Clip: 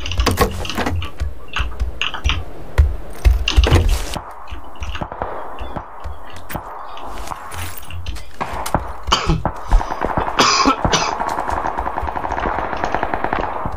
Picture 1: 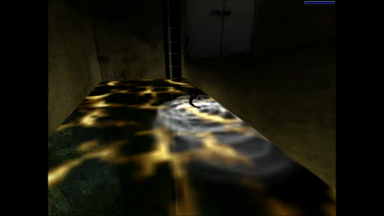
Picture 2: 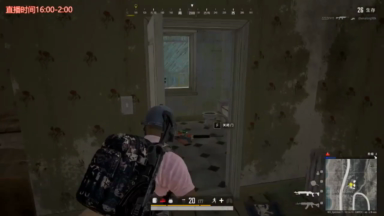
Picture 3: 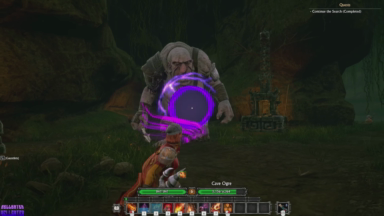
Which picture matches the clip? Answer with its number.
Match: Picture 2